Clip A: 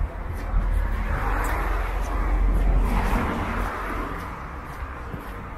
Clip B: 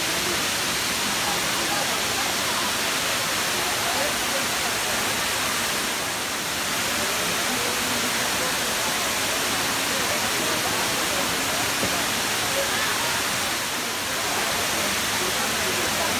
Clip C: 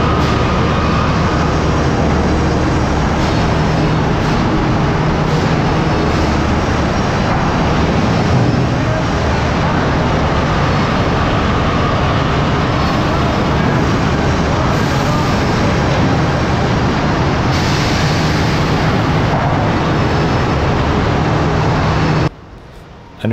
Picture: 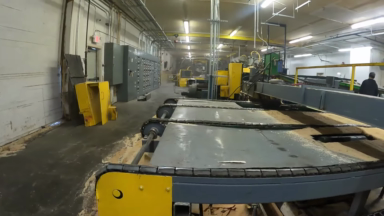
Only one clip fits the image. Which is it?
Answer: C